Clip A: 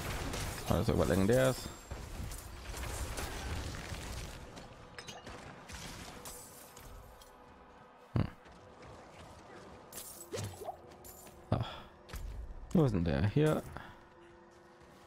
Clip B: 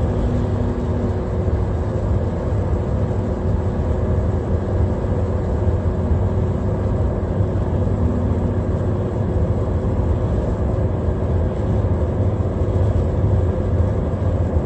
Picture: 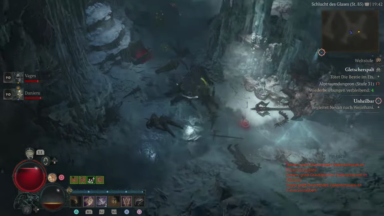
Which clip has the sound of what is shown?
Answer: A